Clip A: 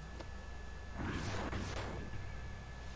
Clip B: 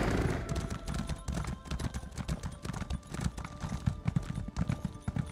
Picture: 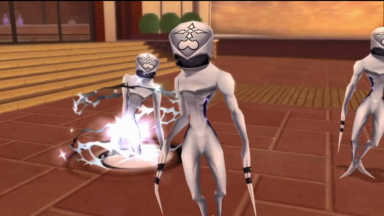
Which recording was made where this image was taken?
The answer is A